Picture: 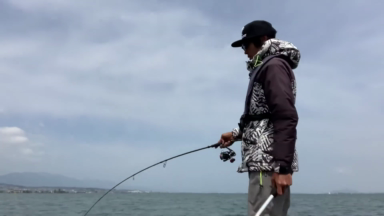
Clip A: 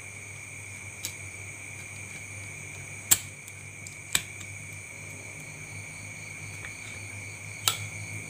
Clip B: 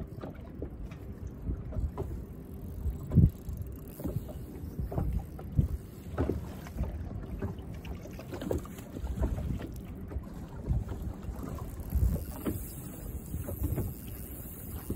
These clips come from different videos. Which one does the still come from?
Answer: B